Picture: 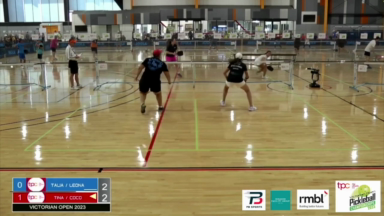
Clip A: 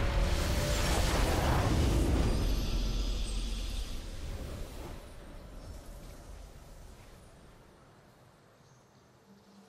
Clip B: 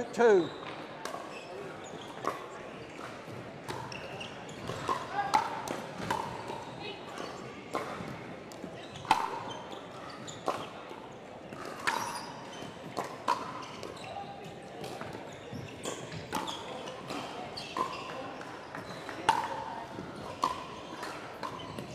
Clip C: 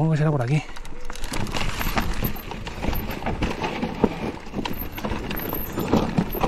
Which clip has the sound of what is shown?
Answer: B